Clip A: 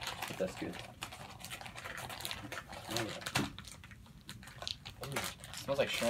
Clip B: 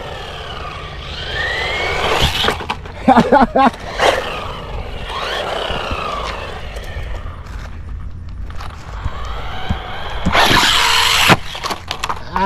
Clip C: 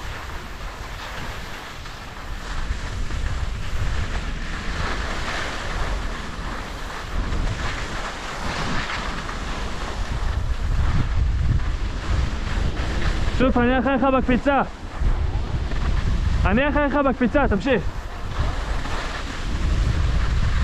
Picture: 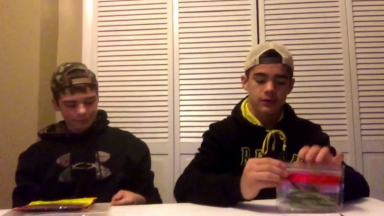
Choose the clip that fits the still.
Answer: A